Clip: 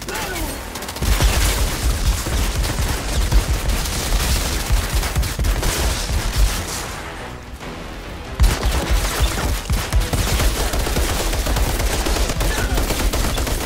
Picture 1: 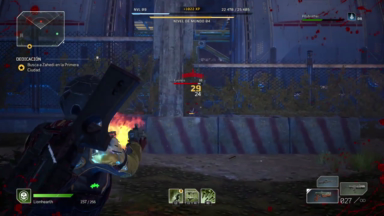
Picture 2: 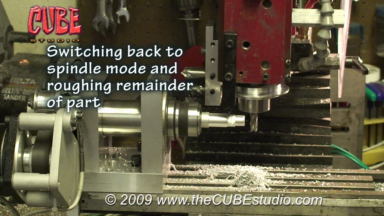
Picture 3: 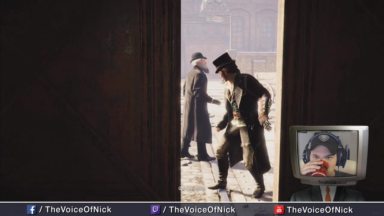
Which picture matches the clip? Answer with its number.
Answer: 1